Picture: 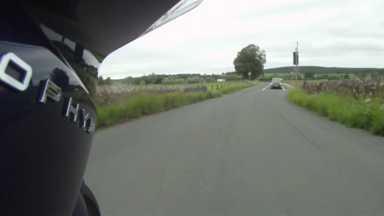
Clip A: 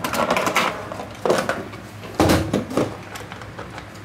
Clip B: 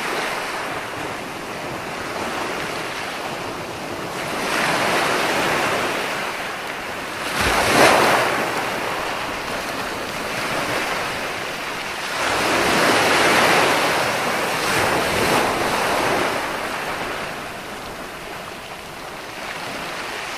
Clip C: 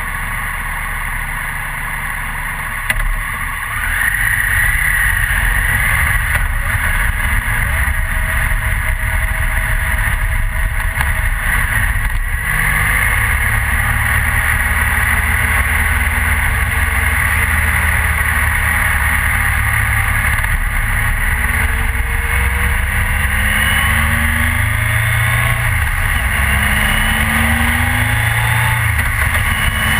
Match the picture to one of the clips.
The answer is C